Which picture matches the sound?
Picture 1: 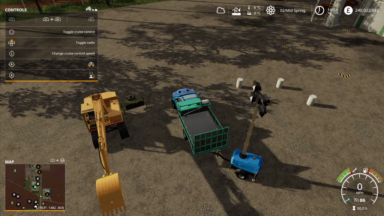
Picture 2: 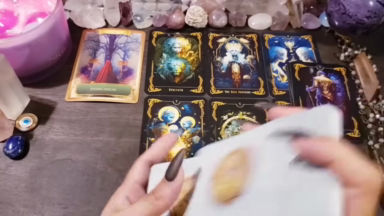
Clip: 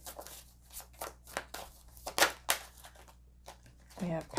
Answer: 2